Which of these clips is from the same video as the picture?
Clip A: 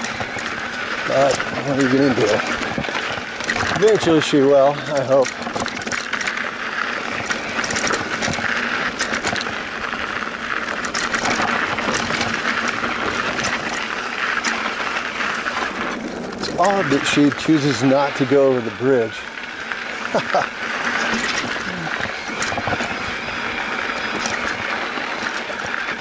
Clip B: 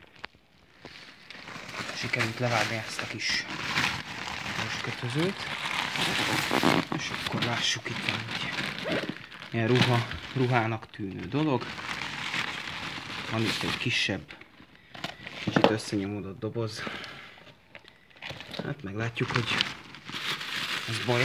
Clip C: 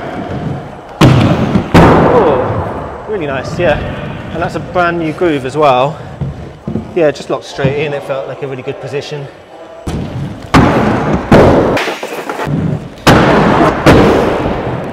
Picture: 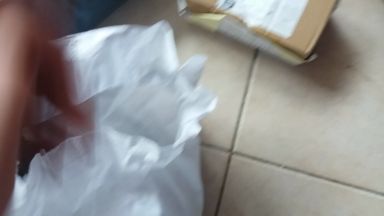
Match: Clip B